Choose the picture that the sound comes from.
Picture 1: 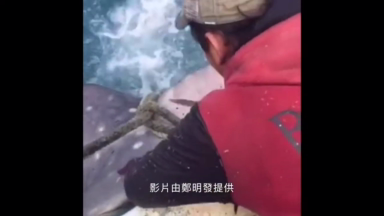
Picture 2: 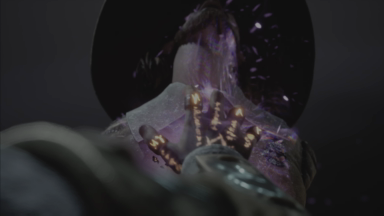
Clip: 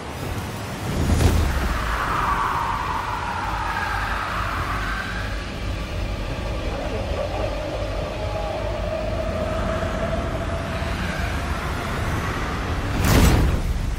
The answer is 2